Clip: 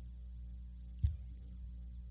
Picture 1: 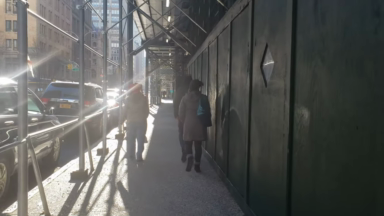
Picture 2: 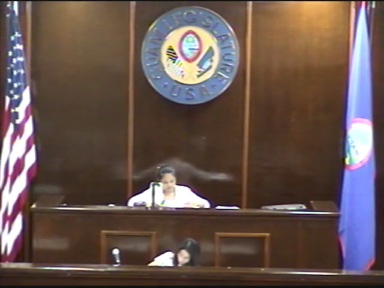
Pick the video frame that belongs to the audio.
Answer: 2